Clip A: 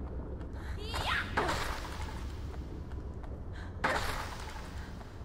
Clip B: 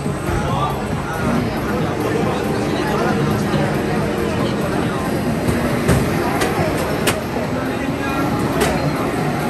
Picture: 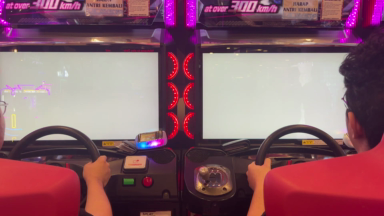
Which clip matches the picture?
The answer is B